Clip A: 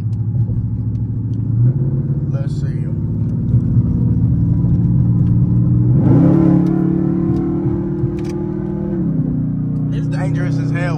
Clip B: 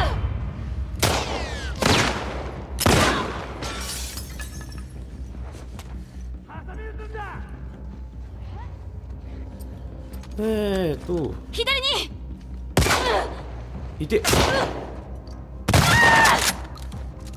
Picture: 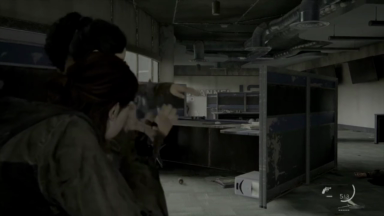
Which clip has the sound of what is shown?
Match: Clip B